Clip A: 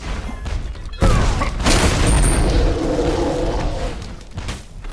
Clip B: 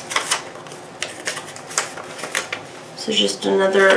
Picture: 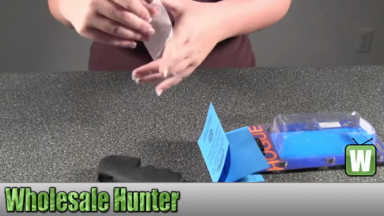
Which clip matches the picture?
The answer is B